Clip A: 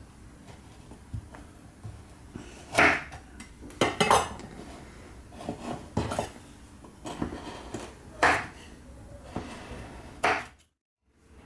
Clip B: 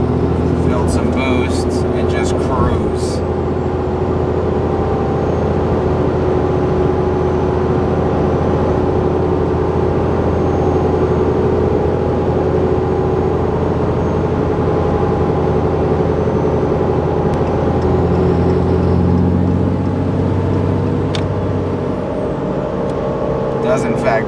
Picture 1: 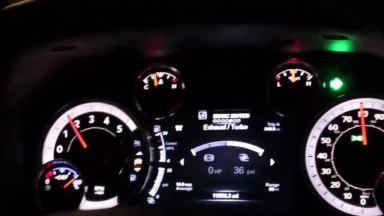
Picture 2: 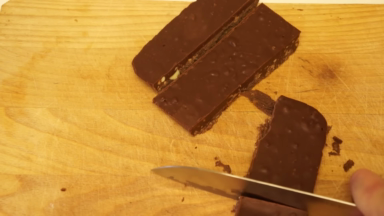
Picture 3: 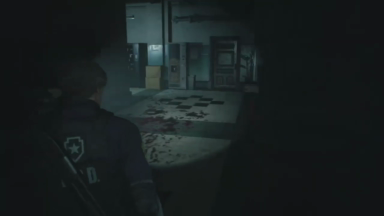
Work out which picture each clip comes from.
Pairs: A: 2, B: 1